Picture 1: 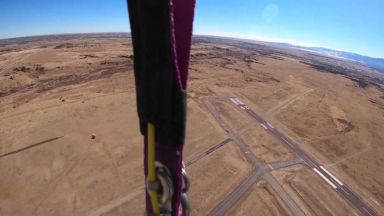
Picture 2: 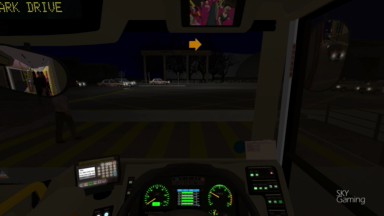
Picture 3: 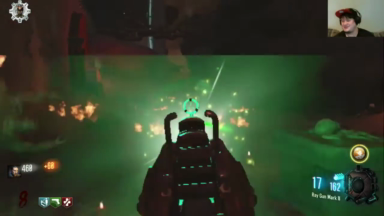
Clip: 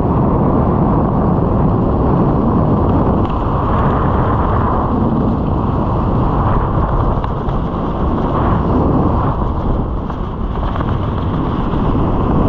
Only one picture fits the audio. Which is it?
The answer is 1